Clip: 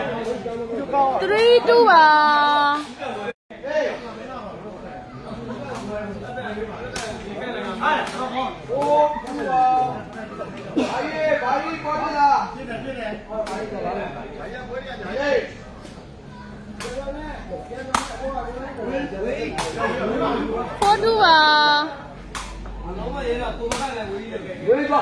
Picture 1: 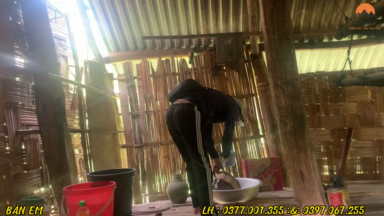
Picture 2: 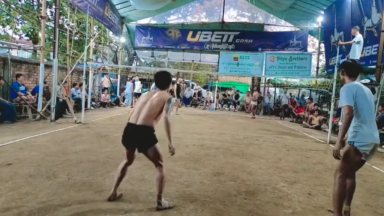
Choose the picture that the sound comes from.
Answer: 2